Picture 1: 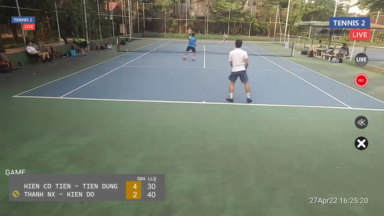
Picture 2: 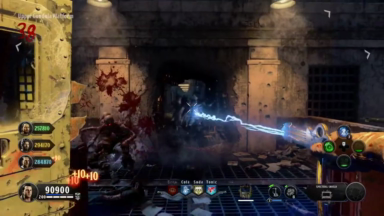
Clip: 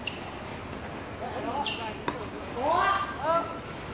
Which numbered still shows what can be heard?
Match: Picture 1